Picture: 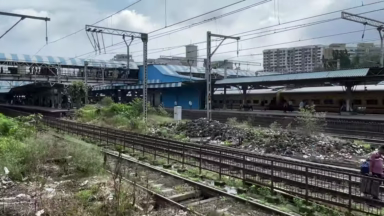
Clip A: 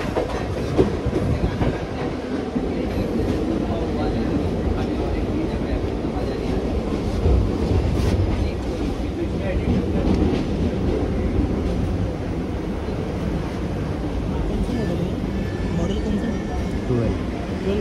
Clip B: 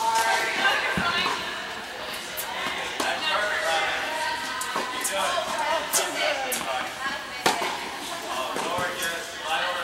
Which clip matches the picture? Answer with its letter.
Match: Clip A